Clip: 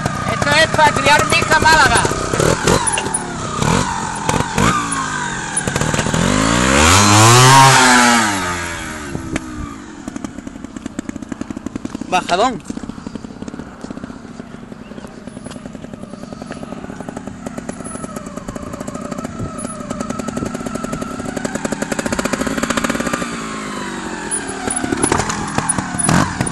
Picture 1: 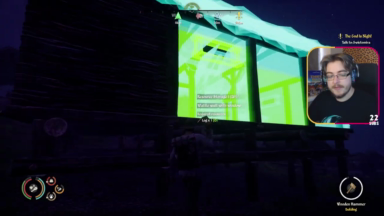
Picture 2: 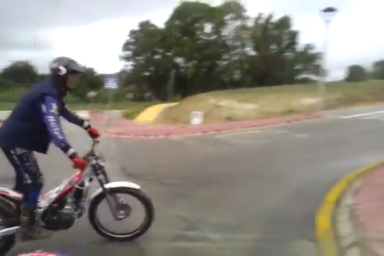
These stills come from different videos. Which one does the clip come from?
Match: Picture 2